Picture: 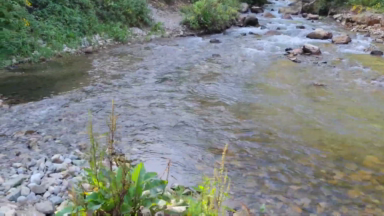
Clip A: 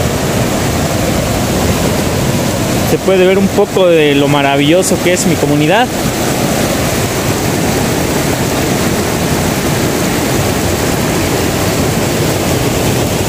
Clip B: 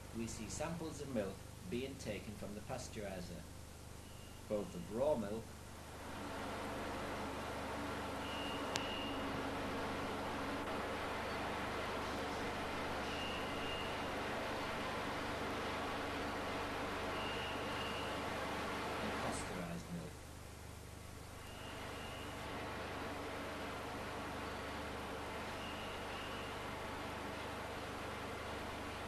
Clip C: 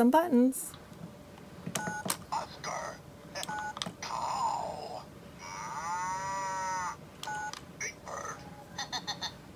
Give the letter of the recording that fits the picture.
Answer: A